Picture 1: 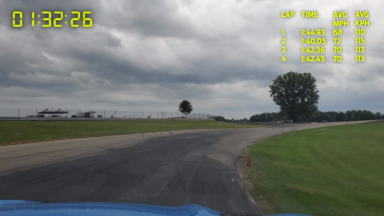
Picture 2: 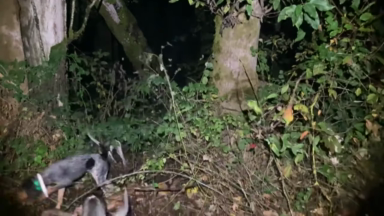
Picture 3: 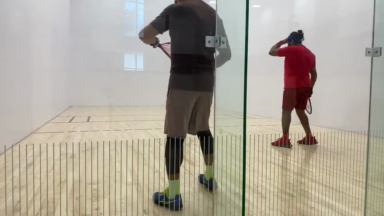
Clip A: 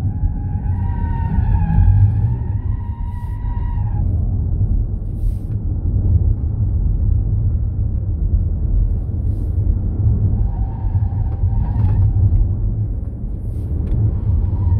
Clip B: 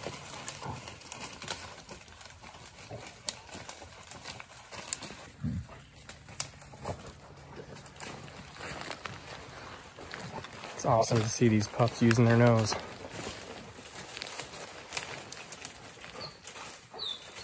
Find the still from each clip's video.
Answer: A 1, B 2